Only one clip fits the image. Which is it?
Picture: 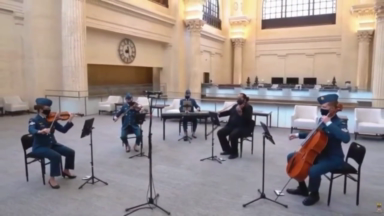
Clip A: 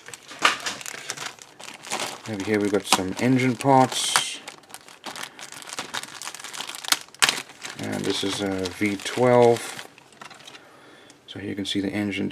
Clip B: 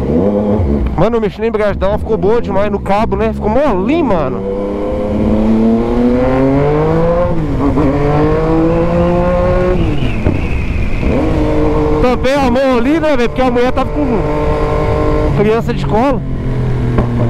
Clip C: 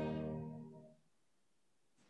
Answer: C